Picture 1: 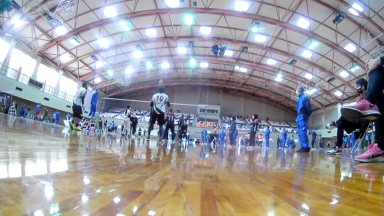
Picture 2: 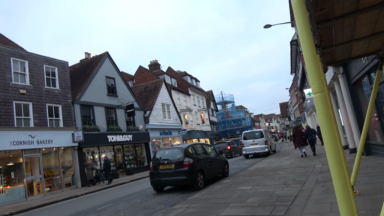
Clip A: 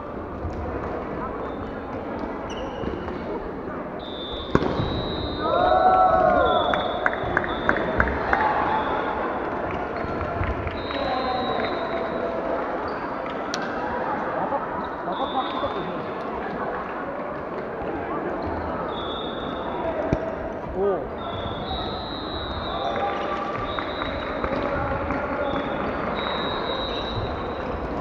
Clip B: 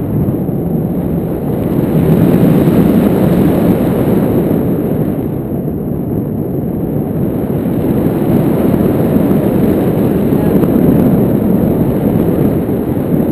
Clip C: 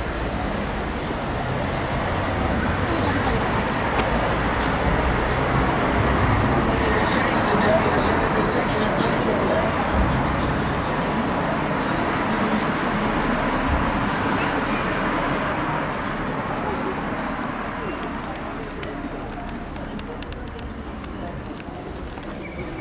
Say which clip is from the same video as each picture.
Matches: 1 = A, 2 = C